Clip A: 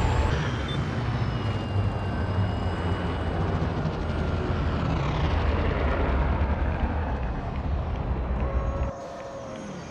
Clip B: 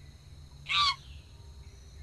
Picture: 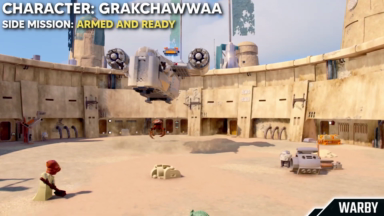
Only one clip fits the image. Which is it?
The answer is A